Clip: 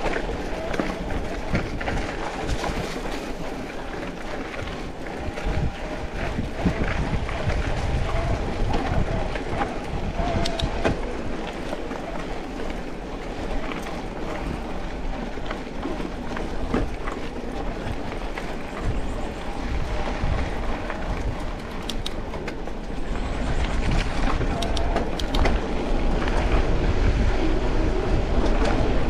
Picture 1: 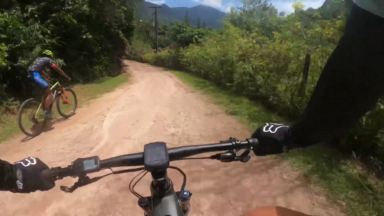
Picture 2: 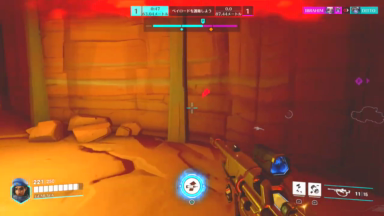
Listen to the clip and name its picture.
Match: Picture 1